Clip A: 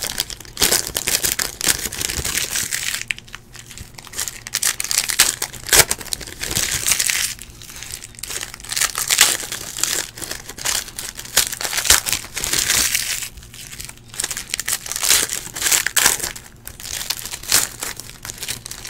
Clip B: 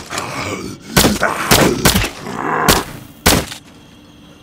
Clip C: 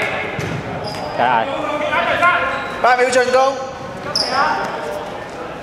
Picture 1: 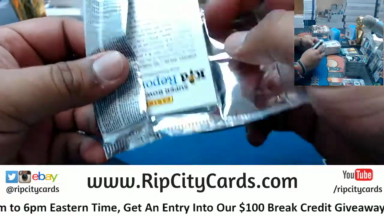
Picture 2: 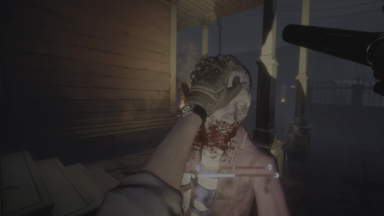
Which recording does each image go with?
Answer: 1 A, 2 B